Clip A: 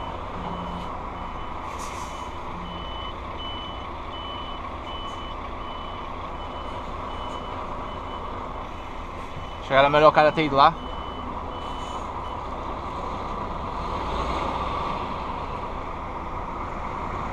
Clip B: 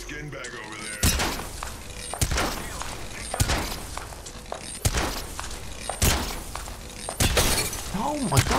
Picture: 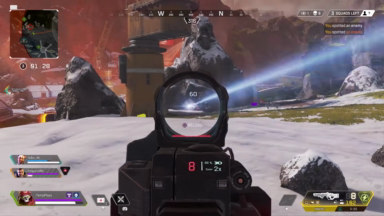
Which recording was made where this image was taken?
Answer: B